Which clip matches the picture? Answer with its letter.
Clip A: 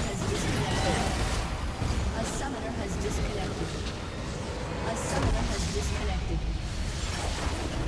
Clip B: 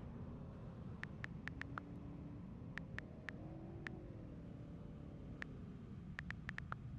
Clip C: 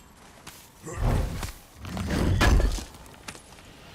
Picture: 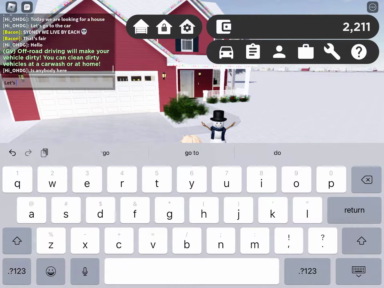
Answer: B